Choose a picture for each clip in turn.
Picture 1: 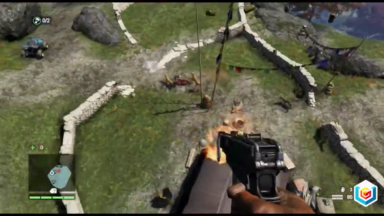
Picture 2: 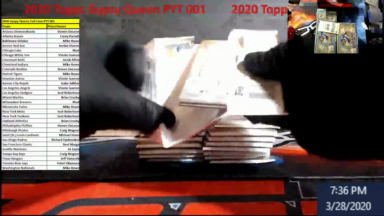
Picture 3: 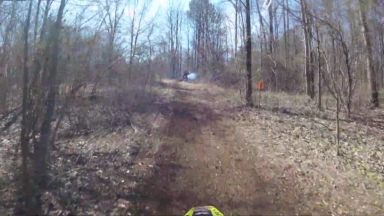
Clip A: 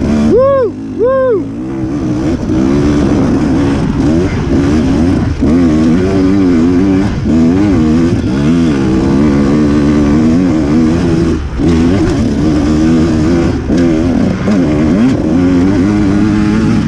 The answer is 3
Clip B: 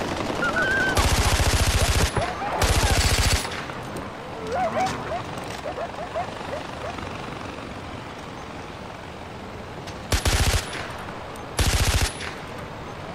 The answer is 1